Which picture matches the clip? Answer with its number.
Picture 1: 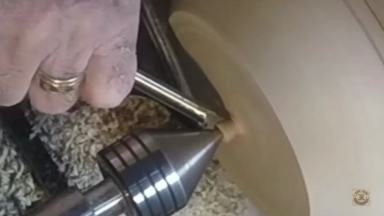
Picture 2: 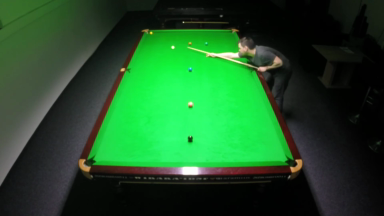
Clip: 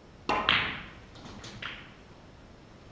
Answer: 2